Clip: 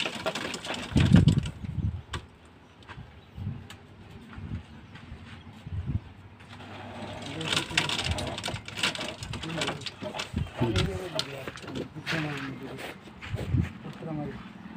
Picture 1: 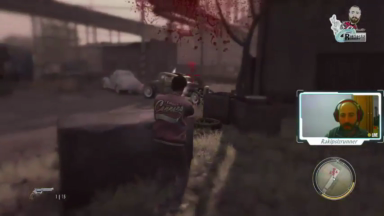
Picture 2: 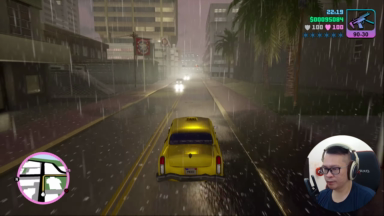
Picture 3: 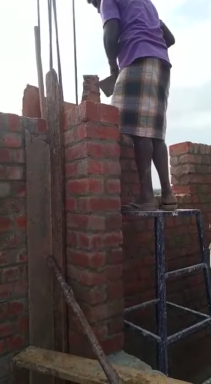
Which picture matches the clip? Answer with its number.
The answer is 3